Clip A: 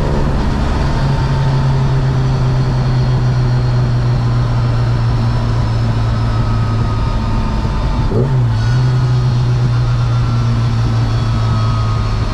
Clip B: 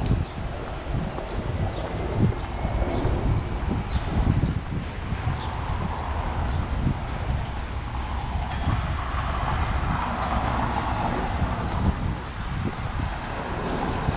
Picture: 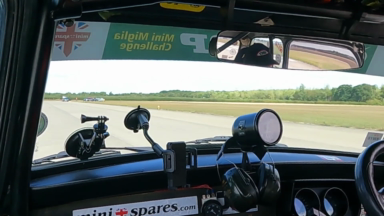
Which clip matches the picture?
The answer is A